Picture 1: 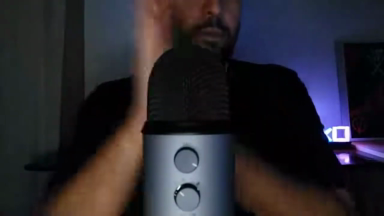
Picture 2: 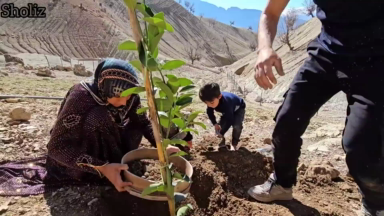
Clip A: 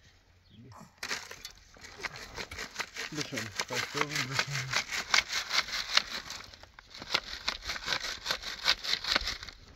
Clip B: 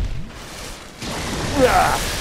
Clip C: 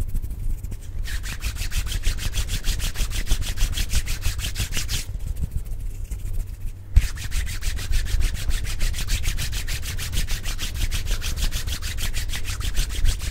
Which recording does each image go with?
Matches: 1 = C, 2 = A